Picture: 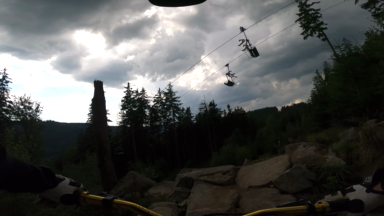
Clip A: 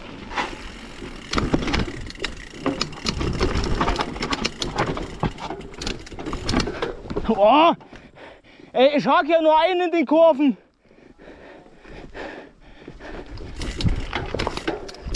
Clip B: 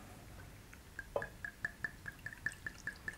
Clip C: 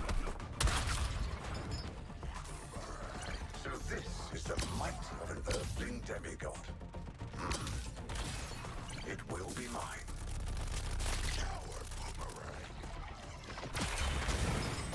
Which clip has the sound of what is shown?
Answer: A